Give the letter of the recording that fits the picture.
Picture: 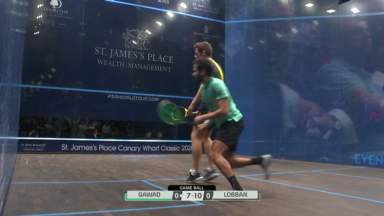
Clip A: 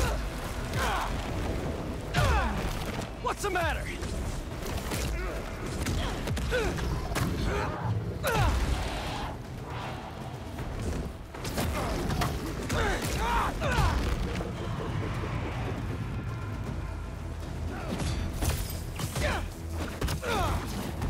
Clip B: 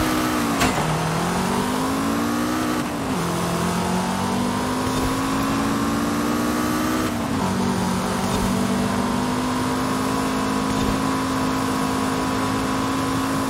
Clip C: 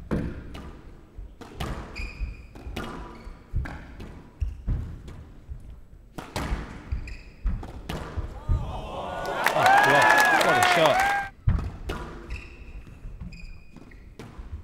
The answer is C